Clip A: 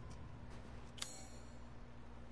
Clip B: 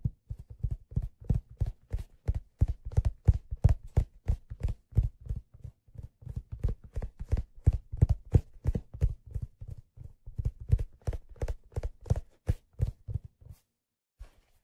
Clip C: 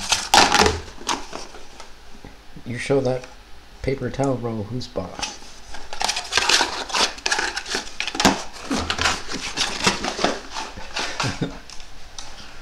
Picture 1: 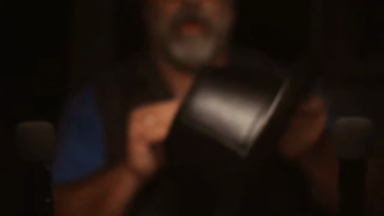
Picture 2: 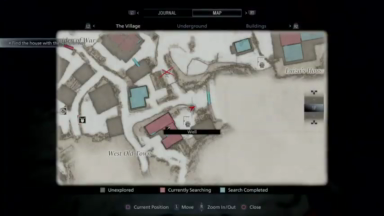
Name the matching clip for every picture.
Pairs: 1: B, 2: A